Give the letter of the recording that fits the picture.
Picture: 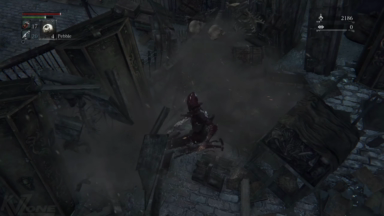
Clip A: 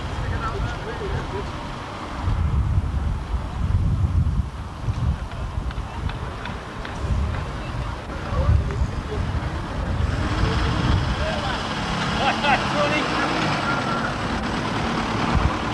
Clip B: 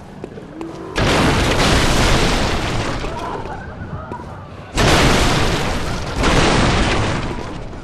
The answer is B